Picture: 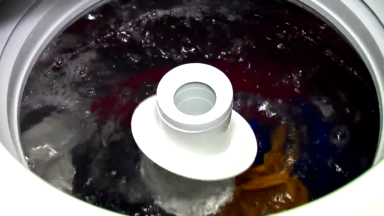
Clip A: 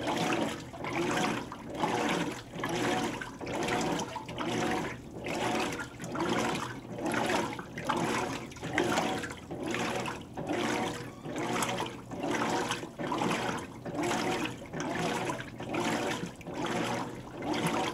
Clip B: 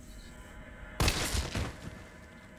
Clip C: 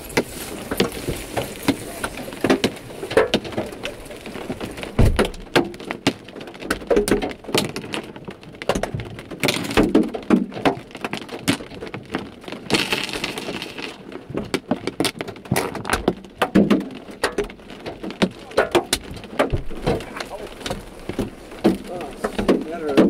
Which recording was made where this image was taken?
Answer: A